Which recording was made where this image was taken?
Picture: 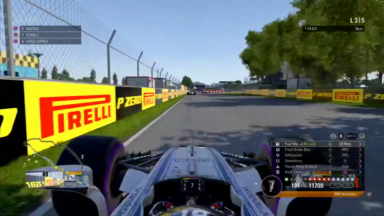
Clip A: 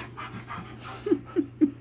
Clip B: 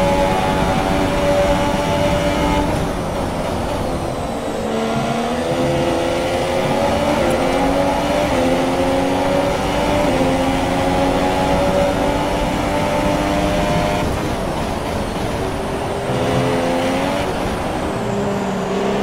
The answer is B